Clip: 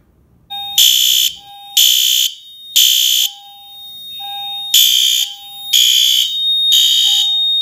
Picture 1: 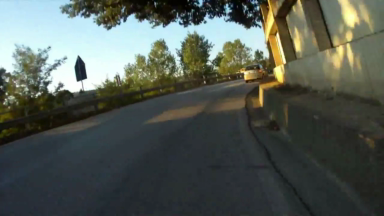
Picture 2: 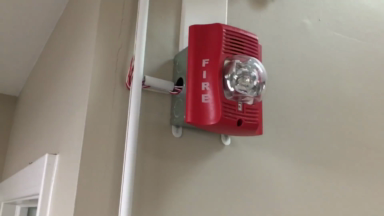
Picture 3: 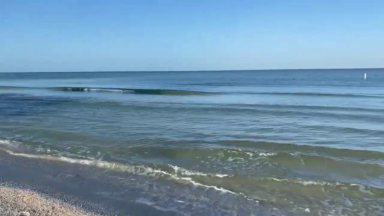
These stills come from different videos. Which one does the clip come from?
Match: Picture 2